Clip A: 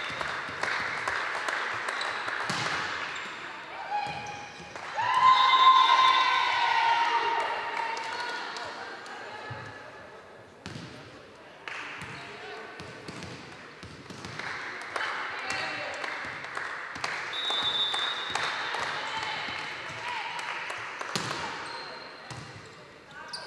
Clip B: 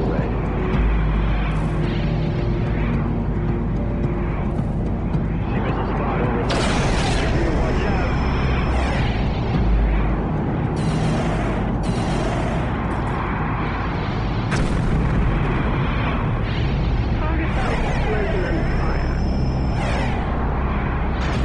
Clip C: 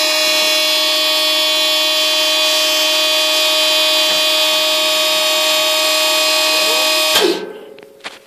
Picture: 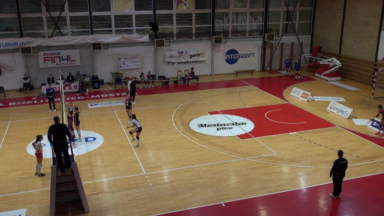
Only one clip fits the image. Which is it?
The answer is A